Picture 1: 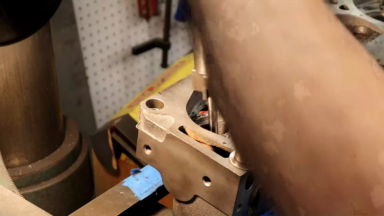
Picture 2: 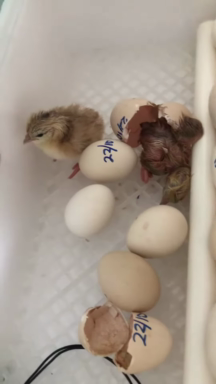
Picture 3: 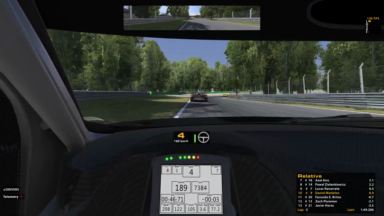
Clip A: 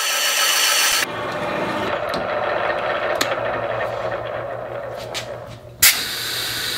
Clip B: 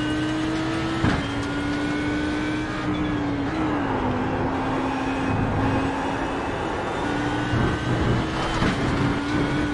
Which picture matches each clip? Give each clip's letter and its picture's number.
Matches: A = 1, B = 3